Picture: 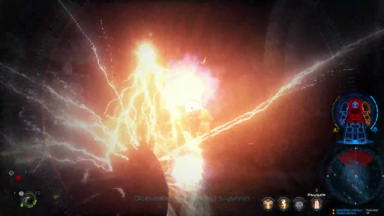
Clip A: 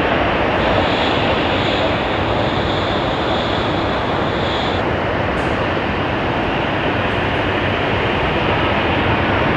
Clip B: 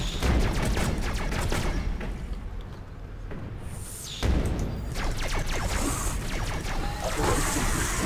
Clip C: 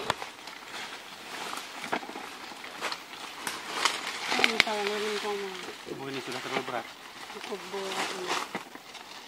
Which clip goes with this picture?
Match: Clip B